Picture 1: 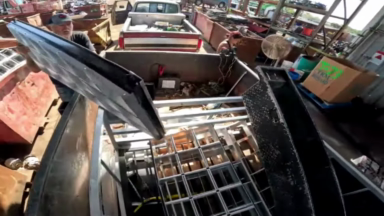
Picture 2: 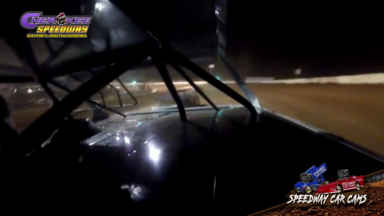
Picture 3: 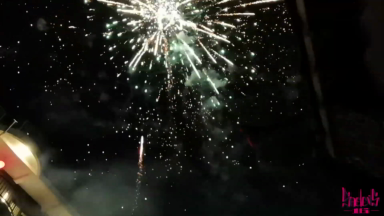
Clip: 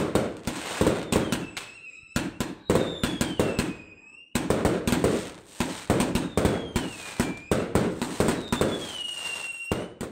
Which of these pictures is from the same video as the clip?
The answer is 3